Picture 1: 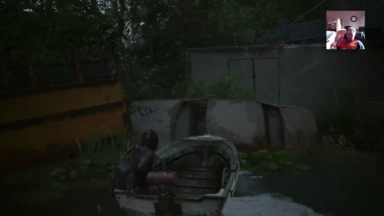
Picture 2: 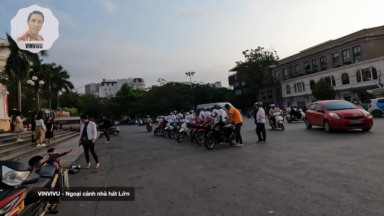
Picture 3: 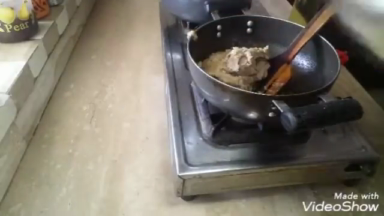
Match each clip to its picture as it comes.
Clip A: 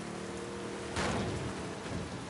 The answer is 1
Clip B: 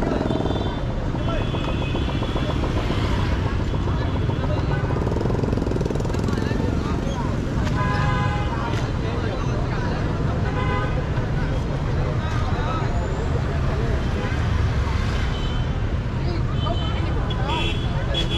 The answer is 2